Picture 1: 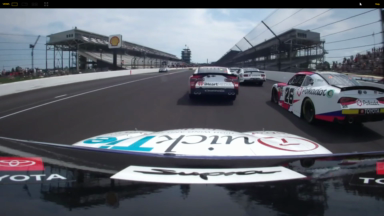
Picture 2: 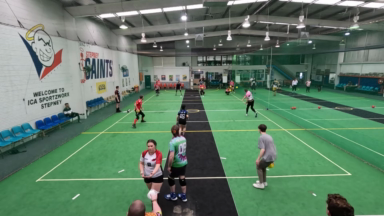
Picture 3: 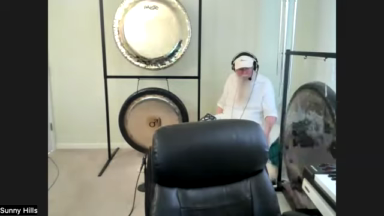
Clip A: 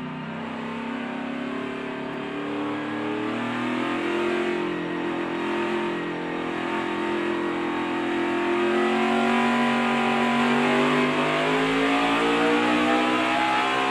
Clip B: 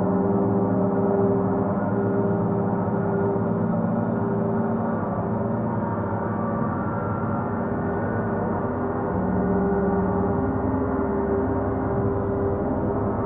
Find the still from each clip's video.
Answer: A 1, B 3